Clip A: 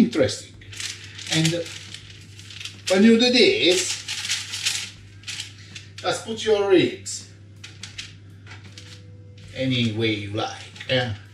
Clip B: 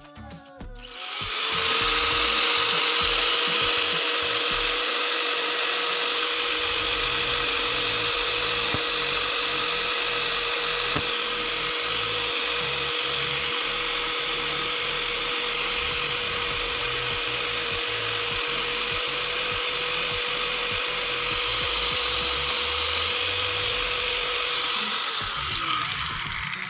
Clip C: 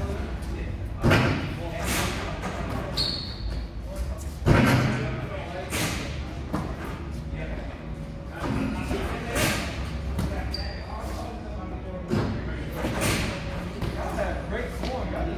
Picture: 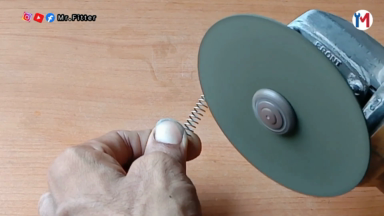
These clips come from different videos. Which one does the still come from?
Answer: B